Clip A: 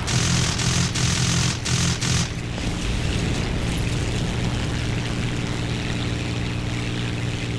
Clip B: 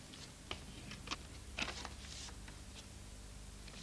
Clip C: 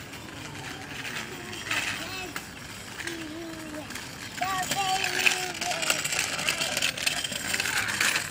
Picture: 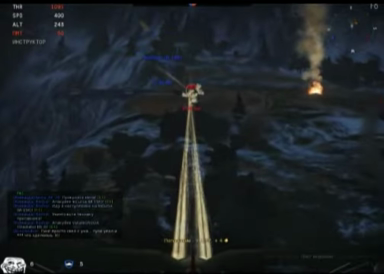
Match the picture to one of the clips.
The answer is A